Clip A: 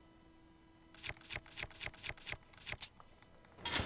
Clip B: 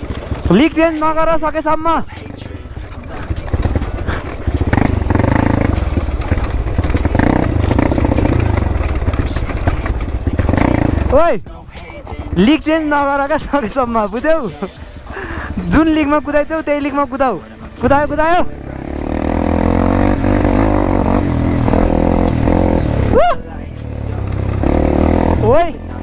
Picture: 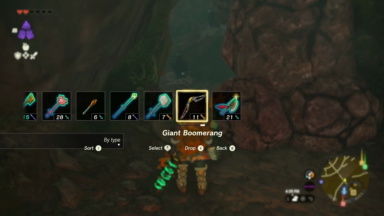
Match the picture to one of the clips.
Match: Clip A